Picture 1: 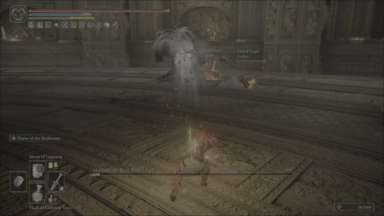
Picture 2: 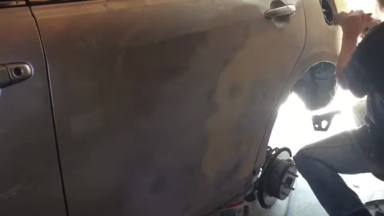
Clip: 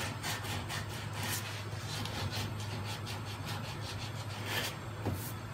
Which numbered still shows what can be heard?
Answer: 2